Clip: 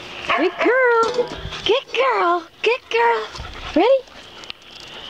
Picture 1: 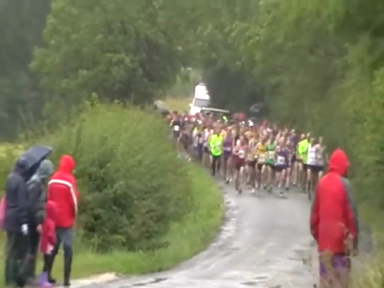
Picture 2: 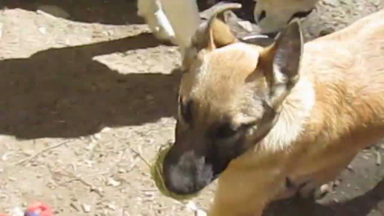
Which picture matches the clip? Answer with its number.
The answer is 2